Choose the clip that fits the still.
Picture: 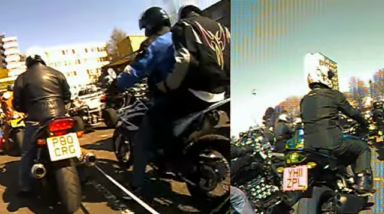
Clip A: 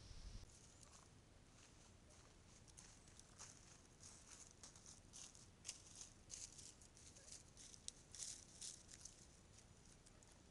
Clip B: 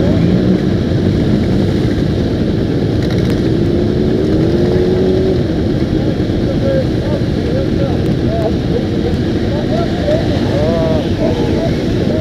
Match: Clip B